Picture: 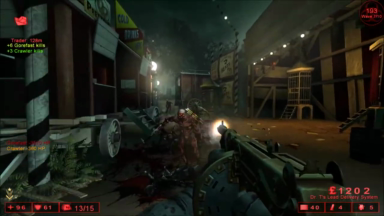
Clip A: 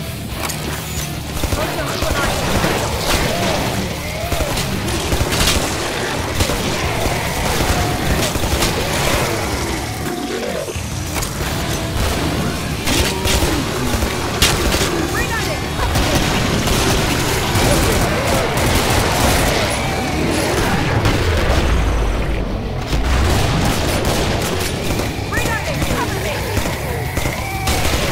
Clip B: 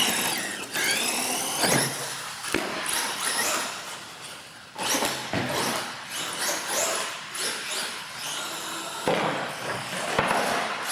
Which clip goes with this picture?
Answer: A